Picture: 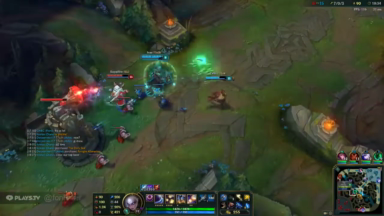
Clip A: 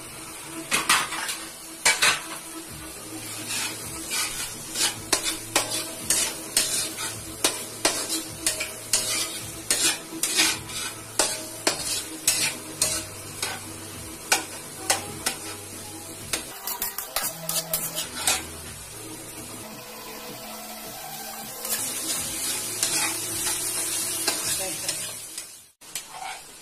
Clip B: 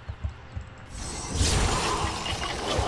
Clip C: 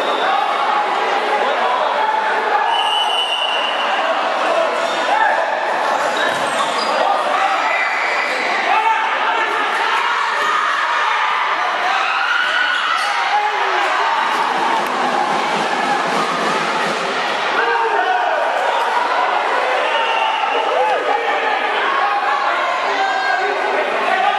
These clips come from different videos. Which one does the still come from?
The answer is B